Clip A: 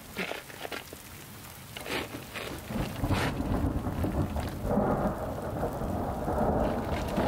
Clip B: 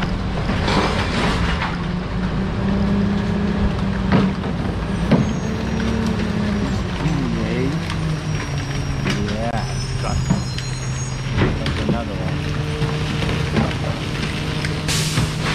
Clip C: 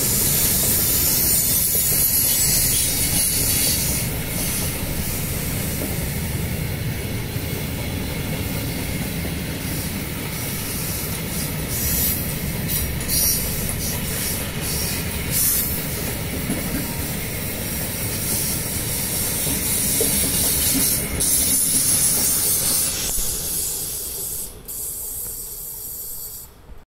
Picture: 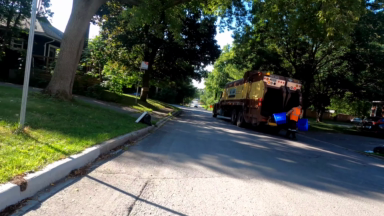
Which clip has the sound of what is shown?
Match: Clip B